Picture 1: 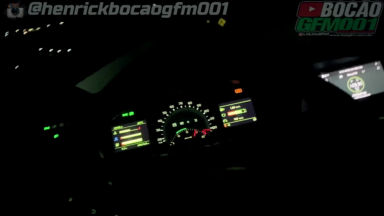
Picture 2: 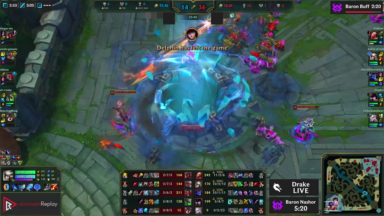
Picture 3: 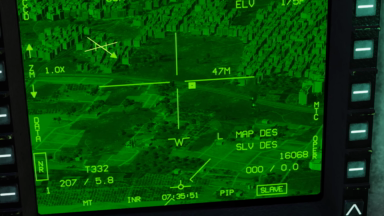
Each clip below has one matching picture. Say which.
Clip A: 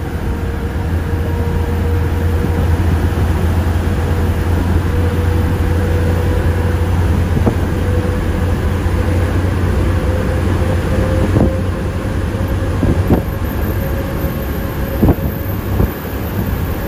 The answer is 1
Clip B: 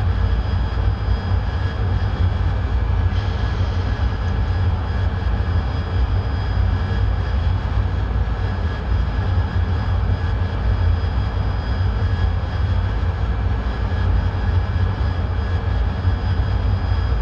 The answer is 3